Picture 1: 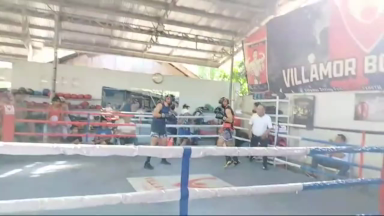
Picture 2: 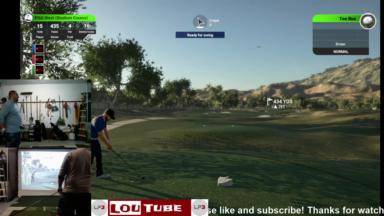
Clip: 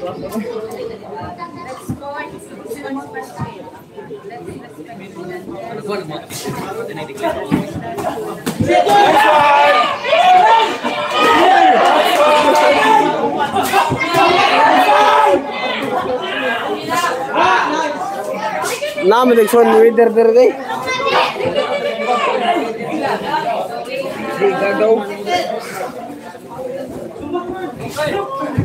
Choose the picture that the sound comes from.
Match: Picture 1